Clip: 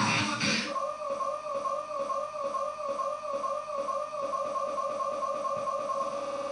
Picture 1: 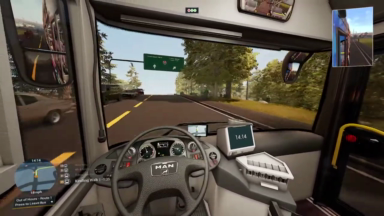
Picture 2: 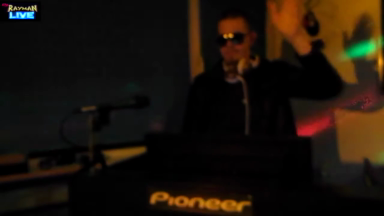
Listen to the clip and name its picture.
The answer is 2